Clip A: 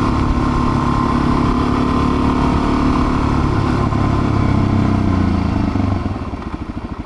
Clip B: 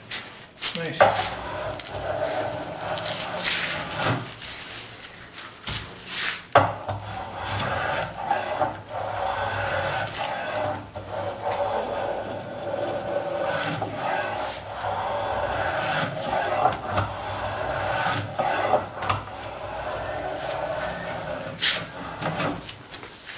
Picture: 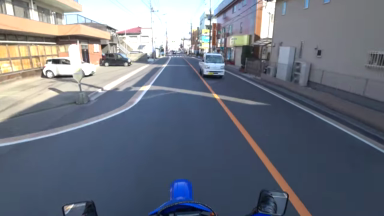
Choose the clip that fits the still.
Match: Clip A